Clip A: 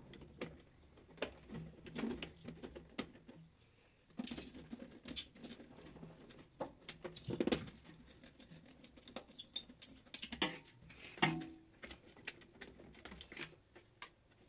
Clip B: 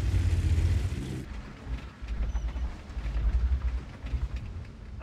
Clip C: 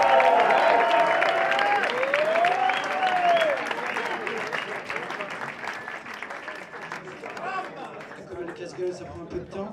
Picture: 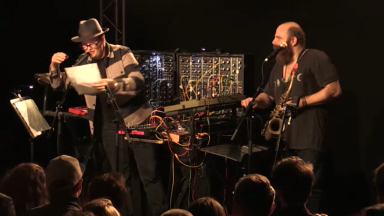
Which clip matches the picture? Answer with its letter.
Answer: C